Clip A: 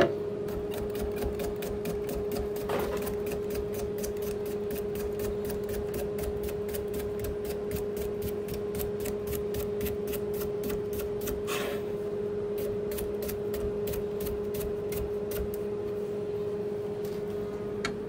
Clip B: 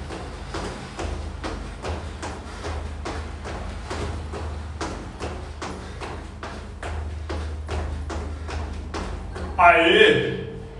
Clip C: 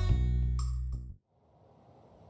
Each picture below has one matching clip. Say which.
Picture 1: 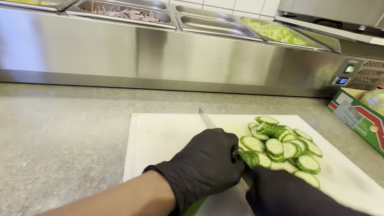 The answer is A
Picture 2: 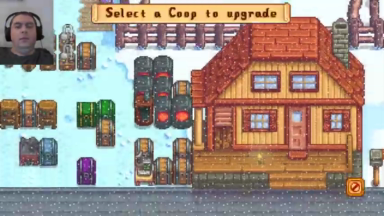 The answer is C